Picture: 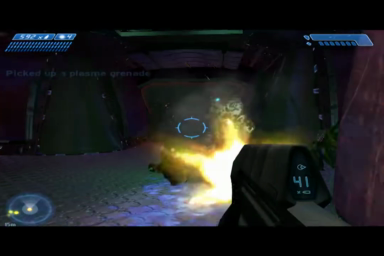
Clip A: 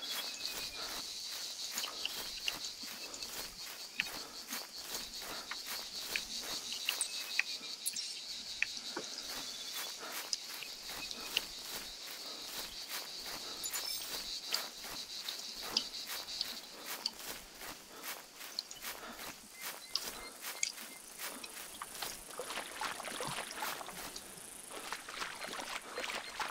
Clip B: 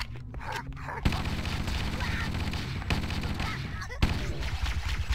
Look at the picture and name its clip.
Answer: B